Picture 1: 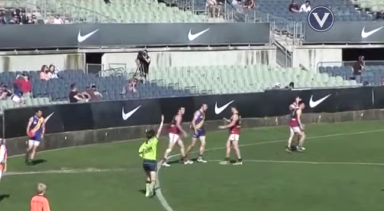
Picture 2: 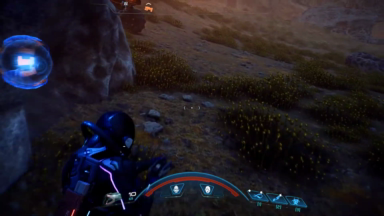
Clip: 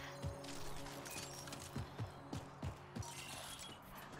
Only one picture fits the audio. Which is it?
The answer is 2